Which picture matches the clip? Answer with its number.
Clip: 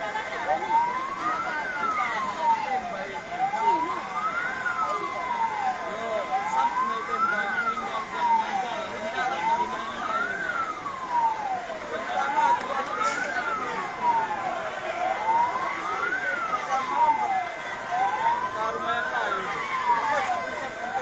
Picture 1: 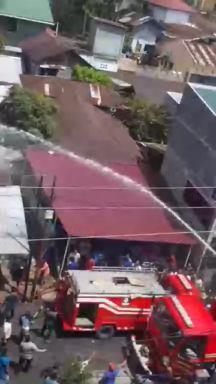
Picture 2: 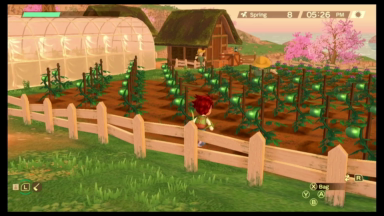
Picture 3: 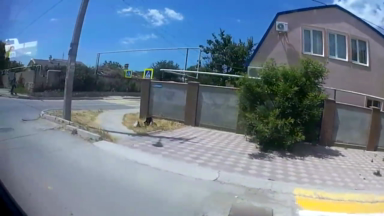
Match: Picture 1